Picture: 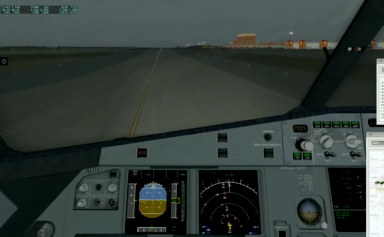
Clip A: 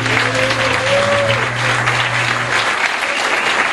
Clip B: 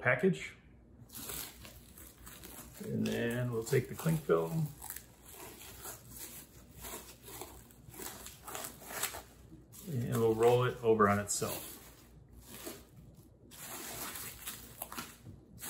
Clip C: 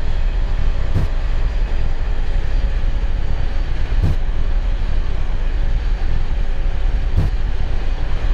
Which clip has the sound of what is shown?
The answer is C